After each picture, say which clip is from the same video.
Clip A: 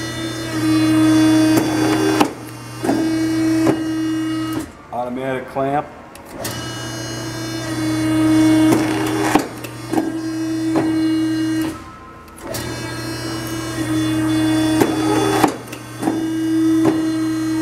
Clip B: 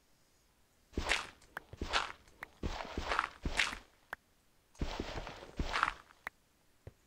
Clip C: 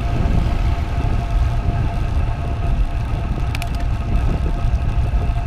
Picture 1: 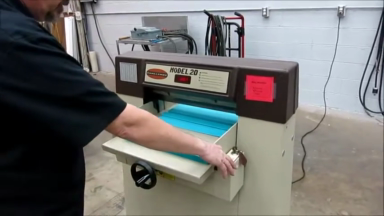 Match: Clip A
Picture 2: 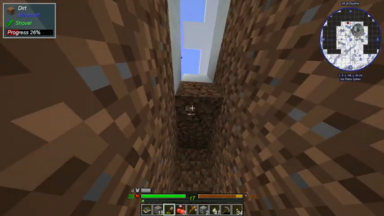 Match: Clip B